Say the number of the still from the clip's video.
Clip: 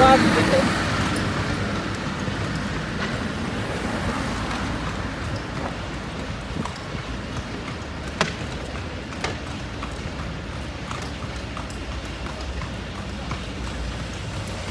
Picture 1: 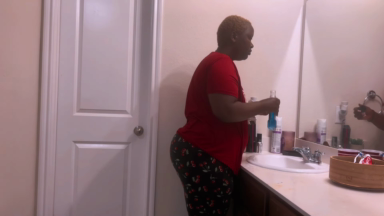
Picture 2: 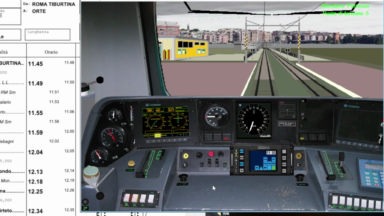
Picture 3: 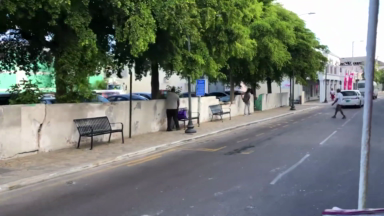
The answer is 3